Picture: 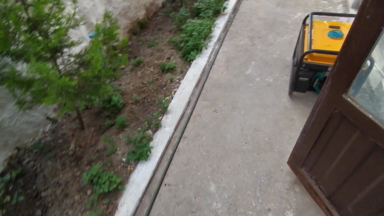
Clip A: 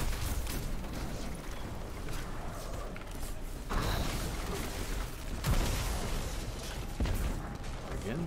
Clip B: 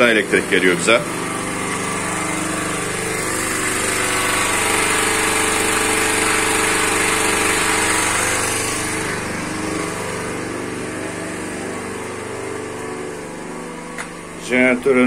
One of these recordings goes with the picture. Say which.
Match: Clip B